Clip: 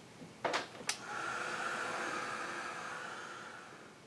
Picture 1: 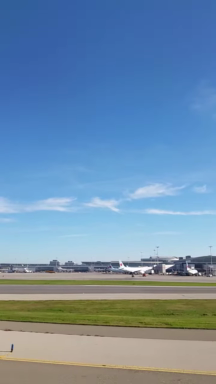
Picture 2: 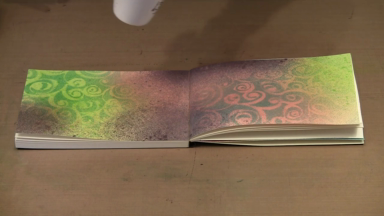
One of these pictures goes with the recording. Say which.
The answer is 2